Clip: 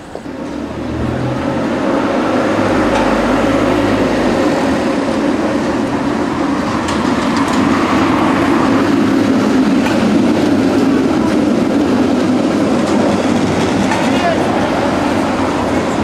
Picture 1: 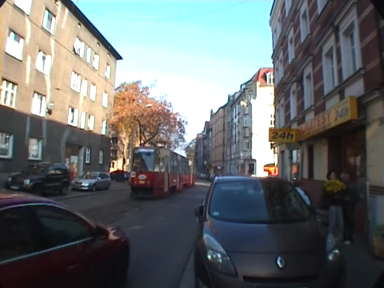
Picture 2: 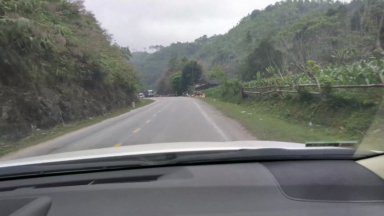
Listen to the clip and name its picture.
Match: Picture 1